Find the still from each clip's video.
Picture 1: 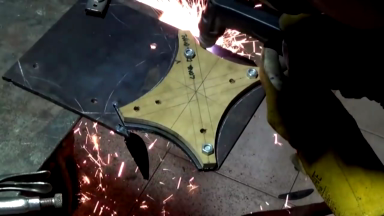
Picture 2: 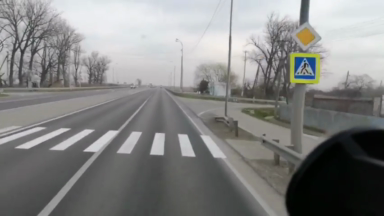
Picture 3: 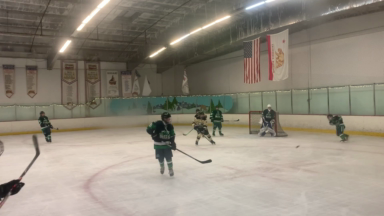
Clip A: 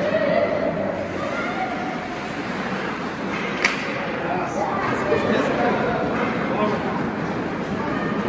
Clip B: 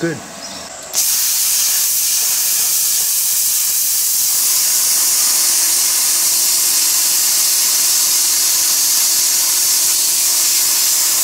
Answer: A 3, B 1